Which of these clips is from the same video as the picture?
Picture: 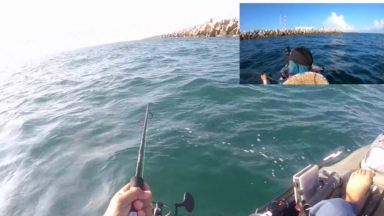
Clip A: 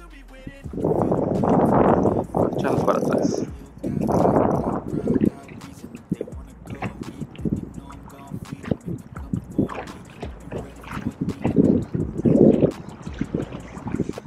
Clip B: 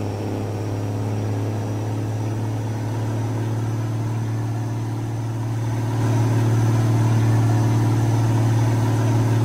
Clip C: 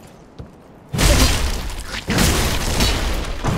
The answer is A